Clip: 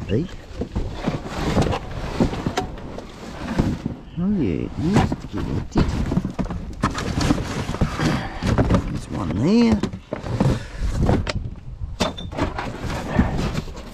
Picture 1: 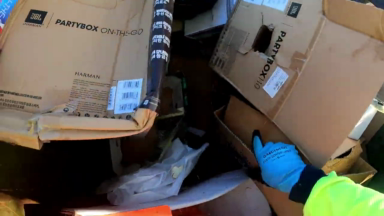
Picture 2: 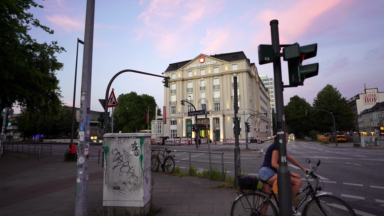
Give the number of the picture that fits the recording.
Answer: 1